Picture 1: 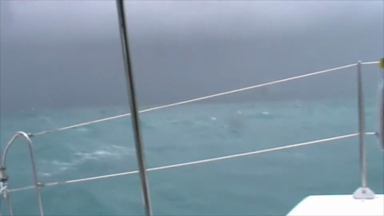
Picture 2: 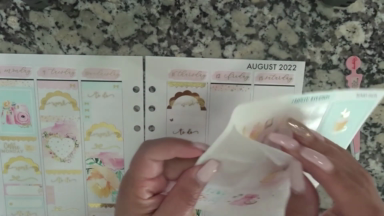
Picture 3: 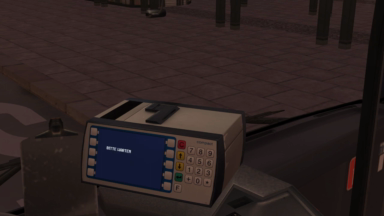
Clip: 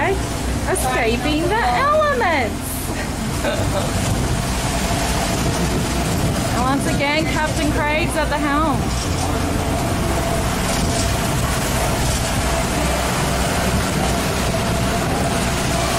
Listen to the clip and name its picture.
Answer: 1